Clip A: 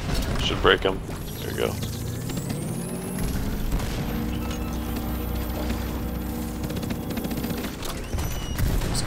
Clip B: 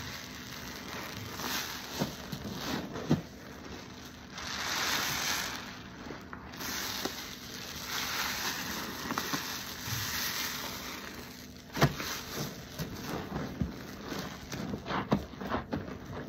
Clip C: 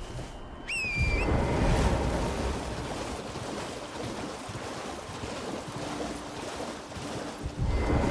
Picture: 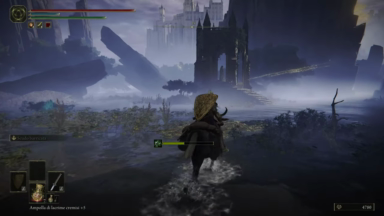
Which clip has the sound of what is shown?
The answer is C